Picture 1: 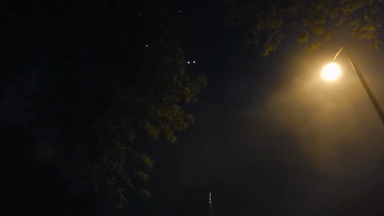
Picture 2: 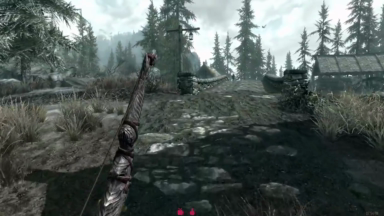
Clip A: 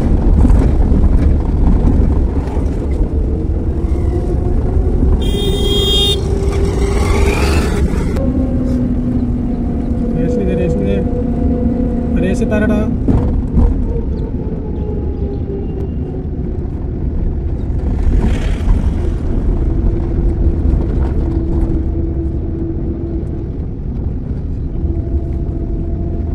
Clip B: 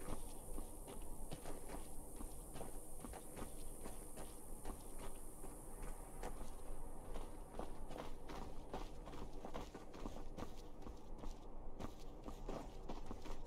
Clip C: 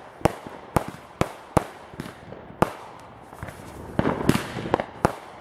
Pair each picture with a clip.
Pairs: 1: C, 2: B